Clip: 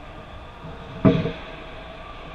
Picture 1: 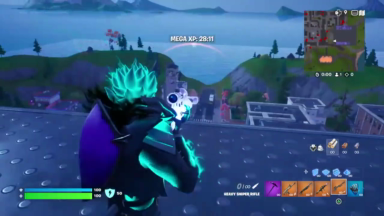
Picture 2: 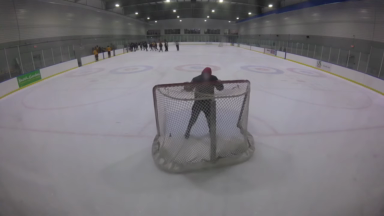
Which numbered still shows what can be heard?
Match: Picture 2